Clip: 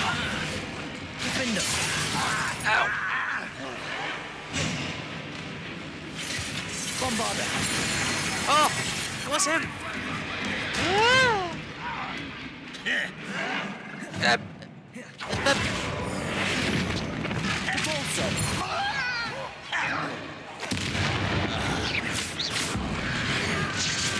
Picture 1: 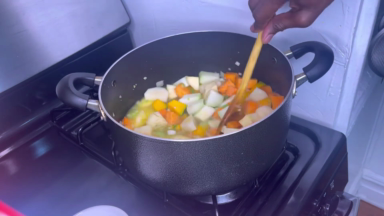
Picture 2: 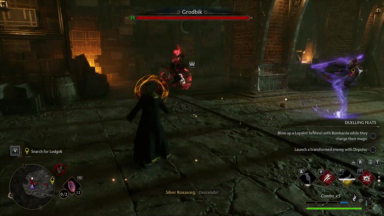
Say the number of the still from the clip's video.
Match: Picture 2